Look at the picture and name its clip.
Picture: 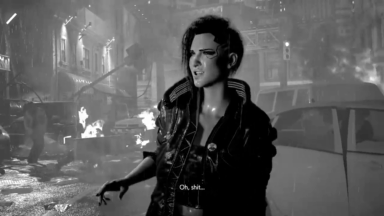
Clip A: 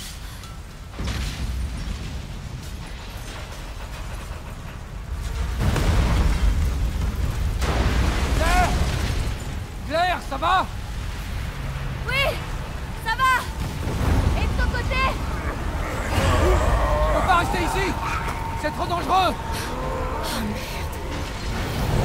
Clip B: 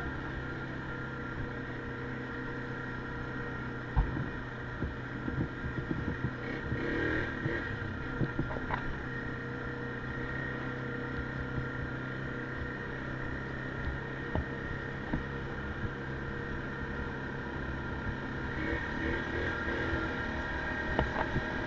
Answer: A